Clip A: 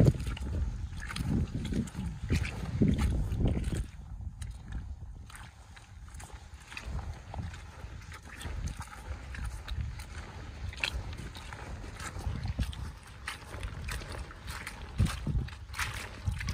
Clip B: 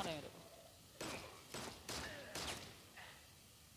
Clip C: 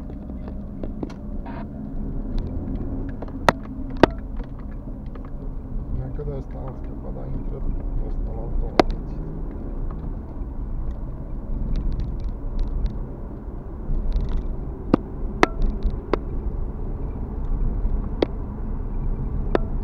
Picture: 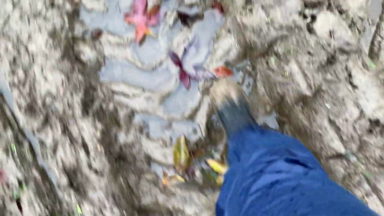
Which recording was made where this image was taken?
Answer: A